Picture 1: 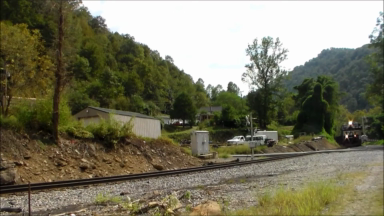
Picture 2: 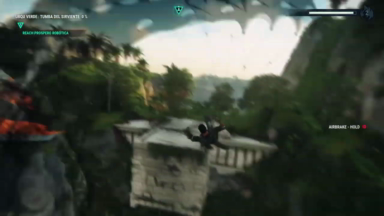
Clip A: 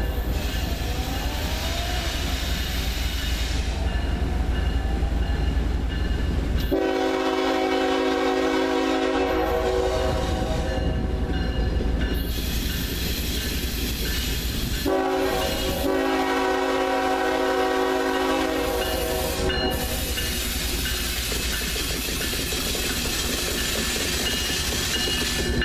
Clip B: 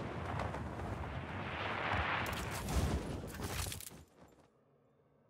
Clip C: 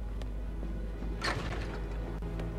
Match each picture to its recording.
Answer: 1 A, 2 B